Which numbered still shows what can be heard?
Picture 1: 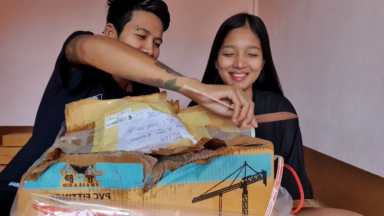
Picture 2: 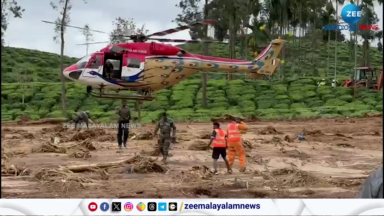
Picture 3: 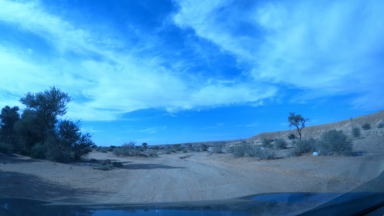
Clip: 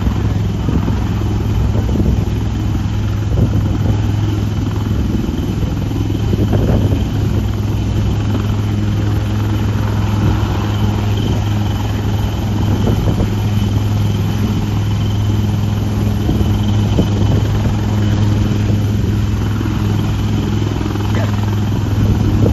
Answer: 2